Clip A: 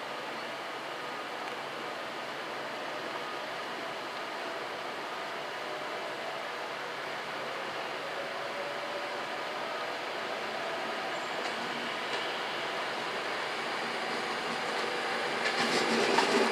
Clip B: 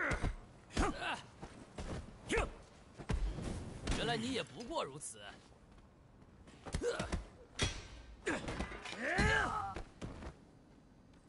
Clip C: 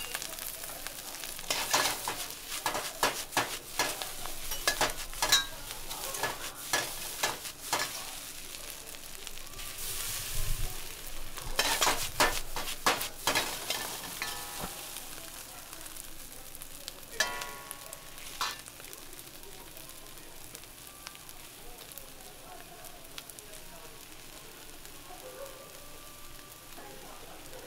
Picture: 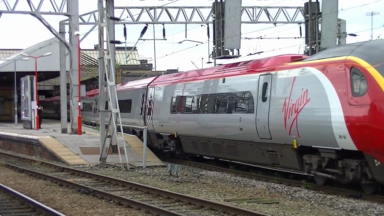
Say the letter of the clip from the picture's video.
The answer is A